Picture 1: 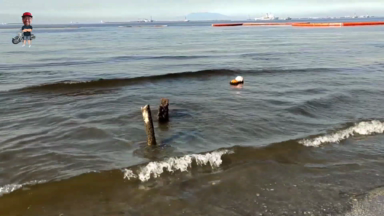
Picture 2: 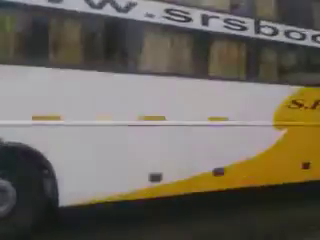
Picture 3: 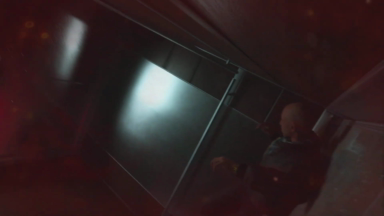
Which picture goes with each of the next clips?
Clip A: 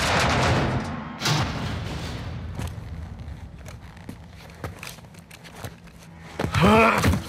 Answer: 3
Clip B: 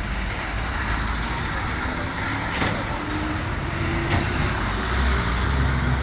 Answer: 2